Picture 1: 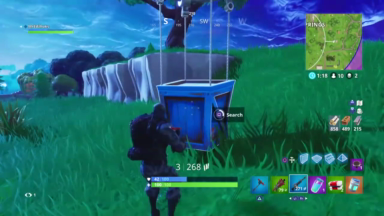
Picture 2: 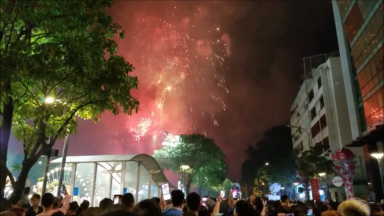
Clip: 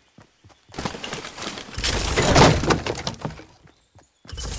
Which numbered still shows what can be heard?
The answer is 1